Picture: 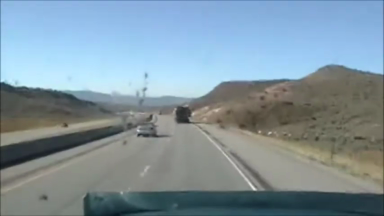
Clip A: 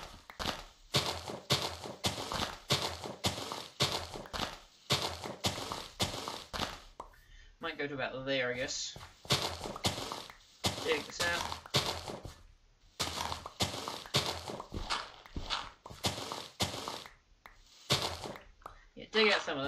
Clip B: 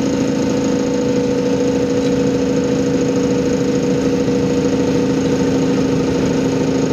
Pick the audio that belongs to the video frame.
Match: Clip B